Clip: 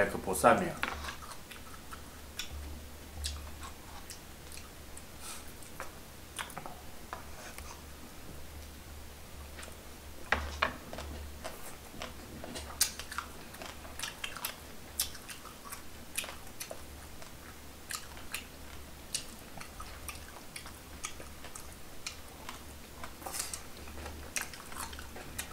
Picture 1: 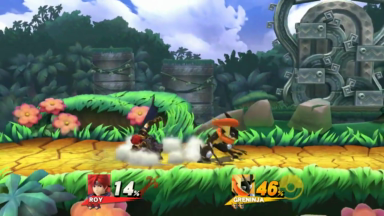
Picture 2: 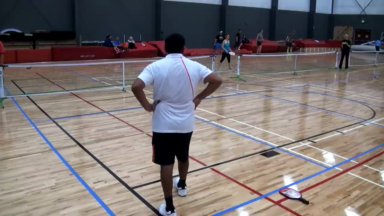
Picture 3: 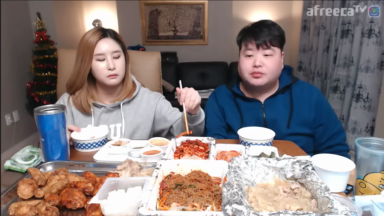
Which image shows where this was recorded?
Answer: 3